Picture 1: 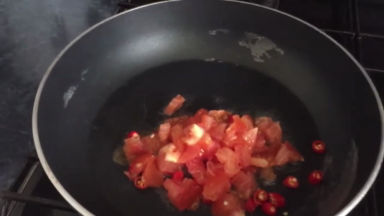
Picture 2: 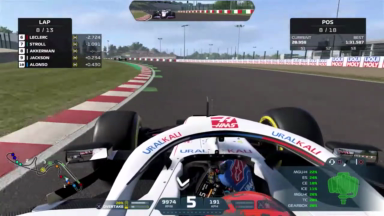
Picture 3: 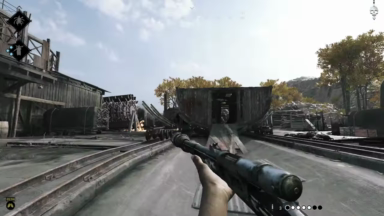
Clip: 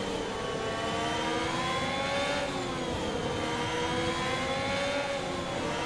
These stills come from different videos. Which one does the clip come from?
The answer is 2